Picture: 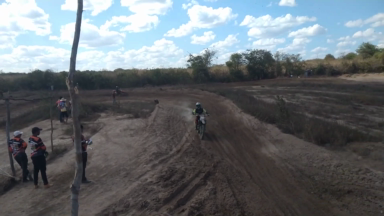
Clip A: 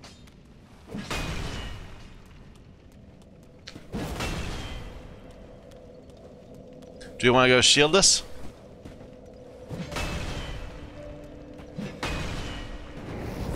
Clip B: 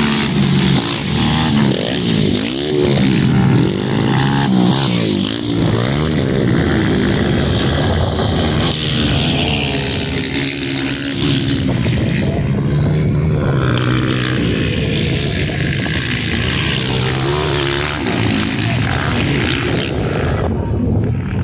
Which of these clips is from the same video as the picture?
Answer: B